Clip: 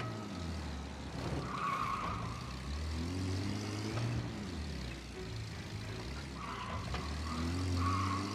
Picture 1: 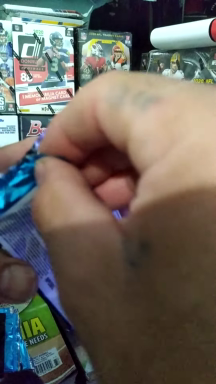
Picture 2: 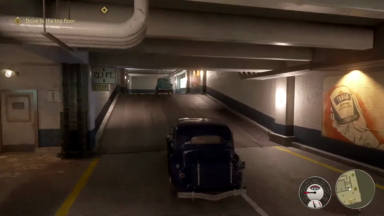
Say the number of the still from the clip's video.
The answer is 2